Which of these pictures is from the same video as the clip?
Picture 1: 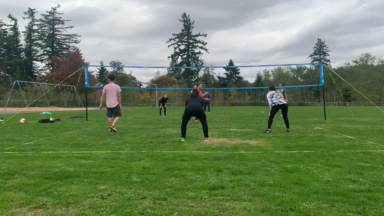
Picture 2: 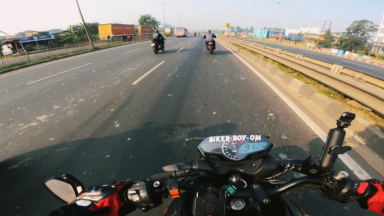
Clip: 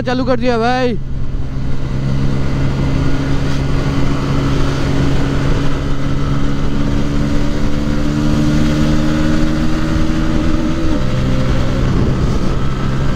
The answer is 2